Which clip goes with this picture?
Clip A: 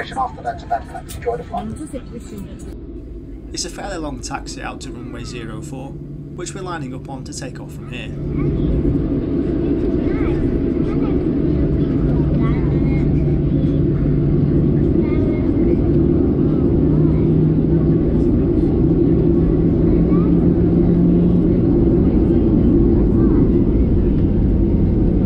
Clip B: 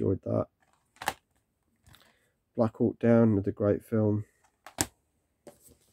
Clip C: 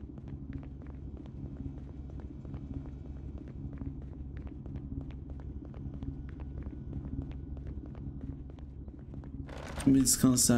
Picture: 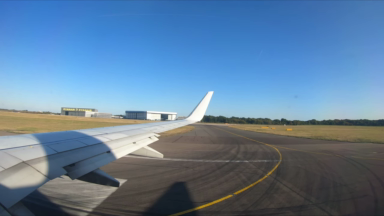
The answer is A